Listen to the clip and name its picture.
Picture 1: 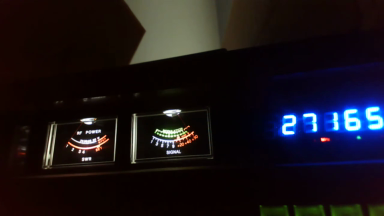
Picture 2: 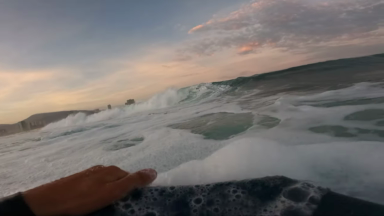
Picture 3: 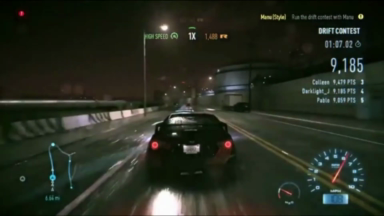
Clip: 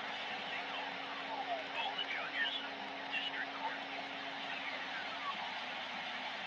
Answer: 1